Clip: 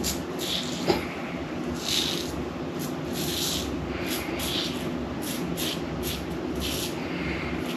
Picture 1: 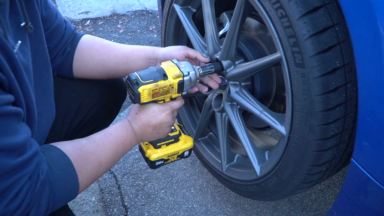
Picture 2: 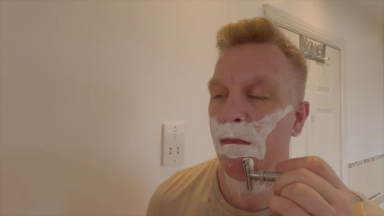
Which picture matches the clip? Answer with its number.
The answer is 2